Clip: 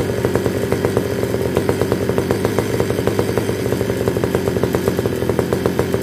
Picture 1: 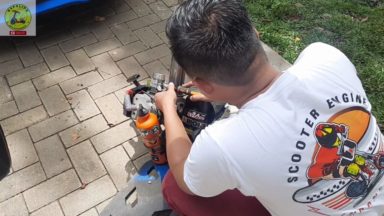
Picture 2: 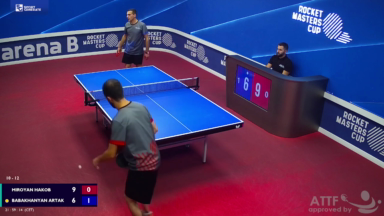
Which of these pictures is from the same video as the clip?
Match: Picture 1